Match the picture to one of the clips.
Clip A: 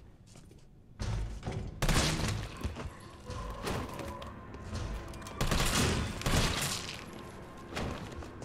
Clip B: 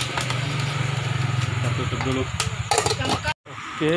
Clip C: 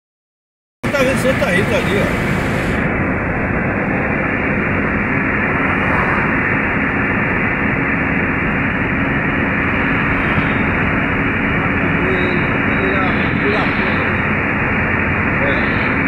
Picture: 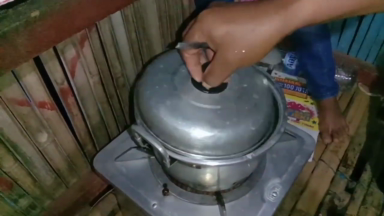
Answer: B